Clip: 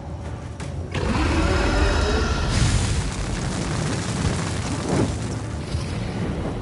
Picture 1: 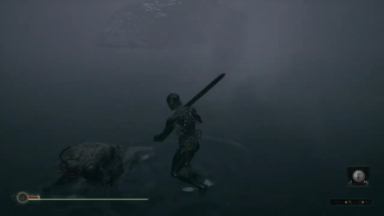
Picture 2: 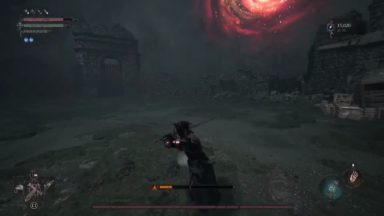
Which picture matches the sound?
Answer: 2